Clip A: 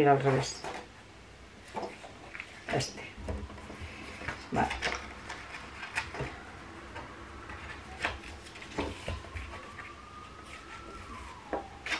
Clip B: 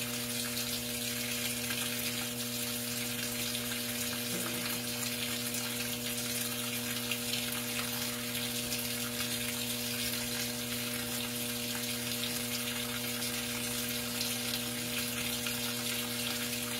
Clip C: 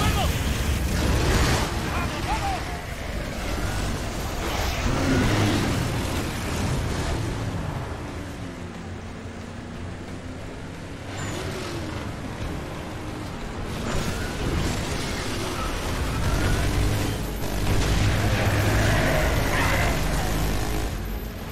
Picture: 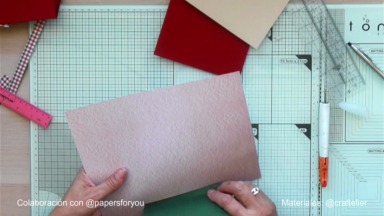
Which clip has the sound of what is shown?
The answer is A